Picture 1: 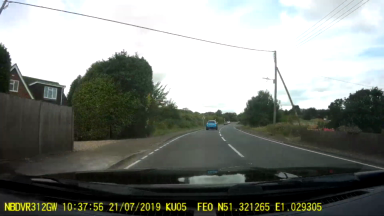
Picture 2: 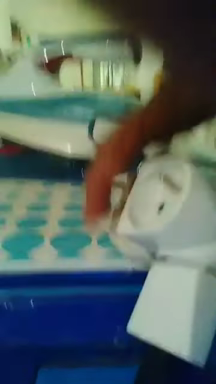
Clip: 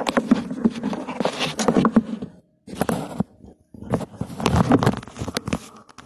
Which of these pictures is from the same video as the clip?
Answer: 2